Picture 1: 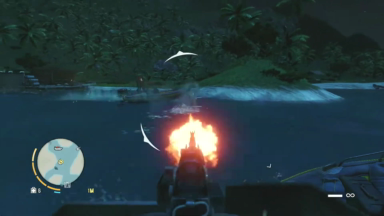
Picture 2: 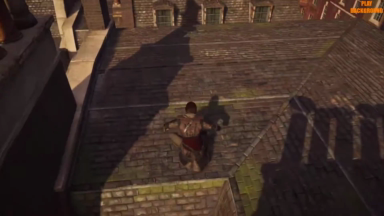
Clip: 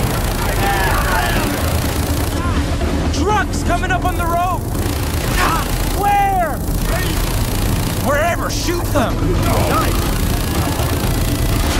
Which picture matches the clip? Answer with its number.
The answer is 1